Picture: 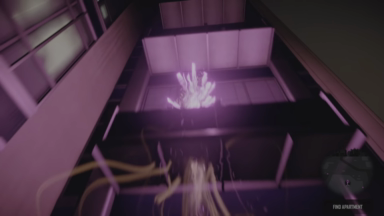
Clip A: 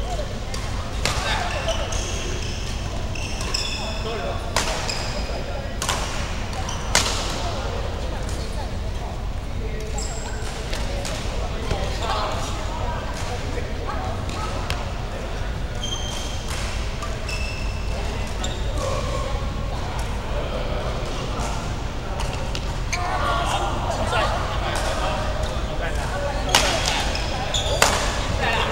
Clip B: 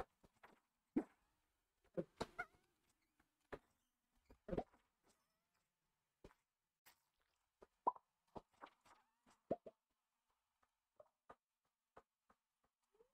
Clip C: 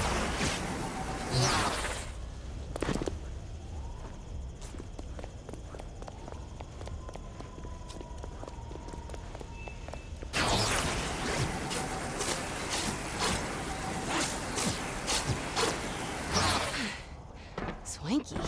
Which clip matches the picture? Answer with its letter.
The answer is C